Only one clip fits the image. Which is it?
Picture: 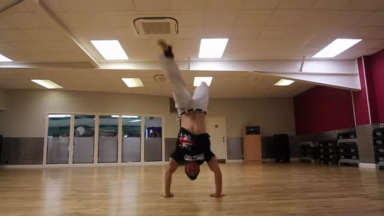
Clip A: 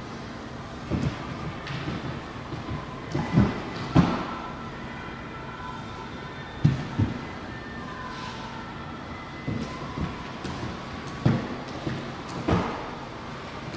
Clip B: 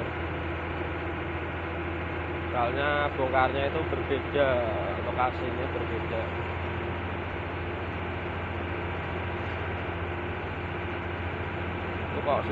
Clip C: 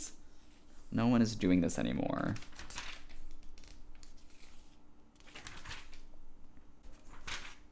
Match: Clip A